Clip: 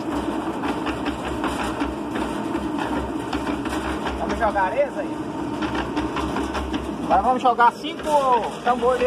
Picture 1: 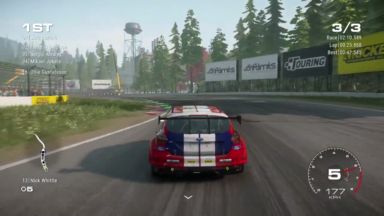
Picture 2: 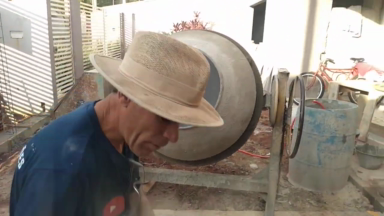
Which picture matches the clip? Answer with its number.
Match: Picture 2